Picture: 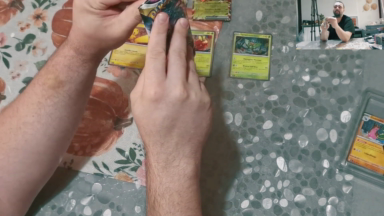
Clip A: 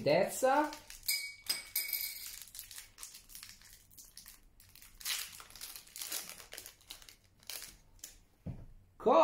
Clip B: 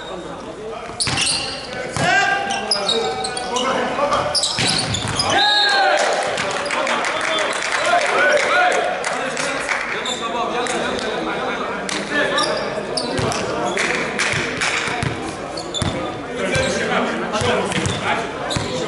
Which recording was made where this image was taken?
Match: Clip A